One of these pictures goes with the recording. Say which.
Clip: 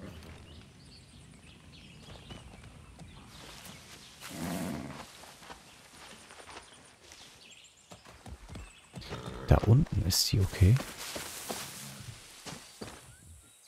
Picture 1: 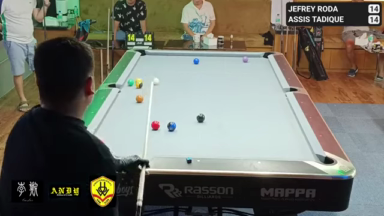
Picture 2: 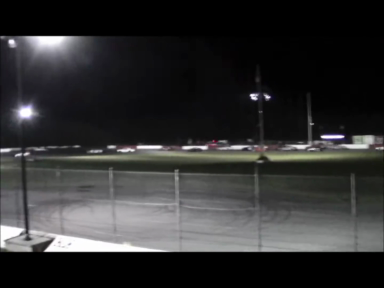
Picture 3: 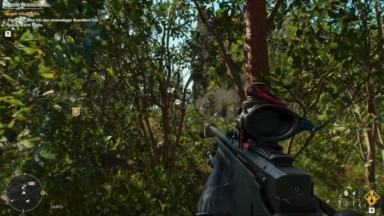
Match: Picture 3